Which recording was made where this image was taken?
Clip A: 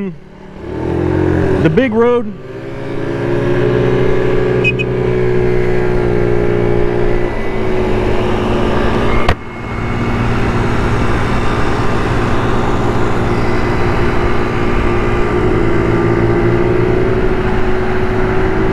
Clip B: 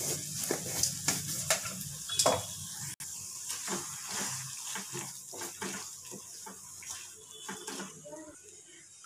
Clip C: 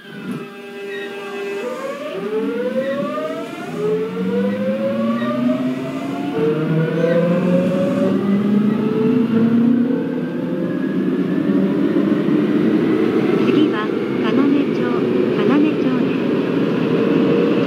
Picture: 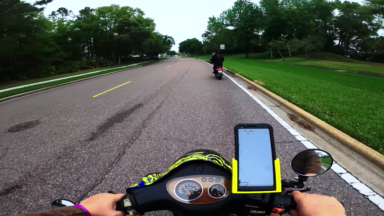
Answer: A